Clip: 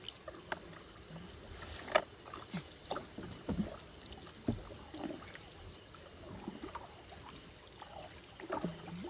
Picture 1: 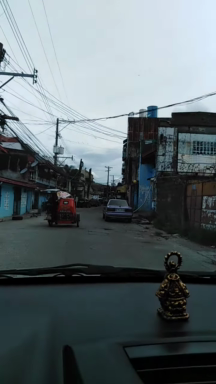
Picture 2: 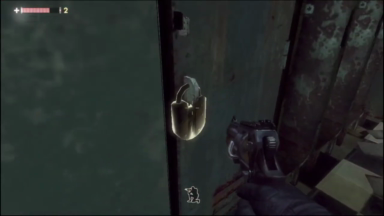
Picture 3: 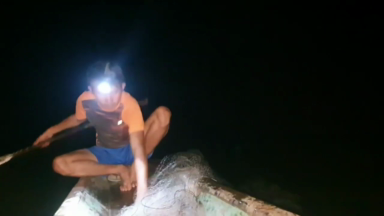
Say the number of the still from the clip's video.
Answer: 3